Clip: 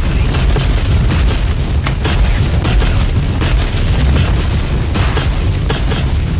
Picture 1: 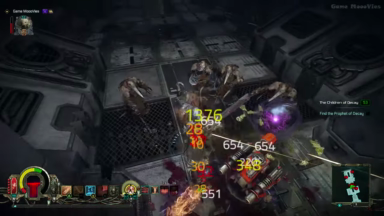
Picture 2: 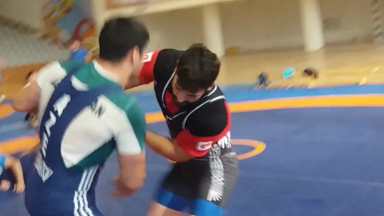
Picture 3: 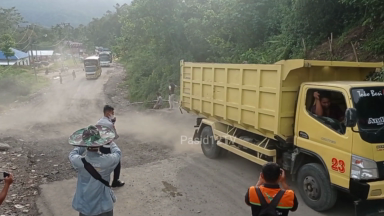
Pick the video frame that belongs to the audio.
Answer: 1